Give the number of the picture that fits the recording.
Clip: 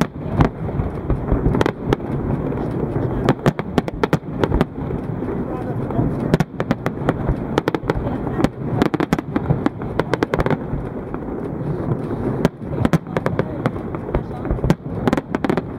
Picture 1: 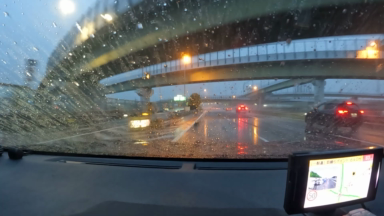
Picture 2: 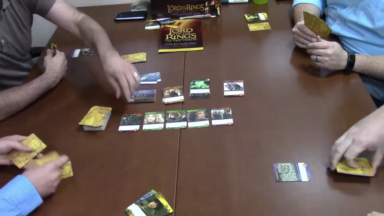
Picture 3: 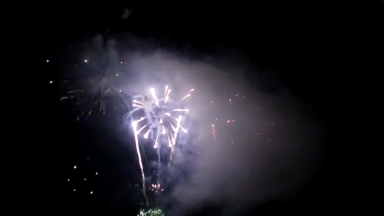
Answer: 3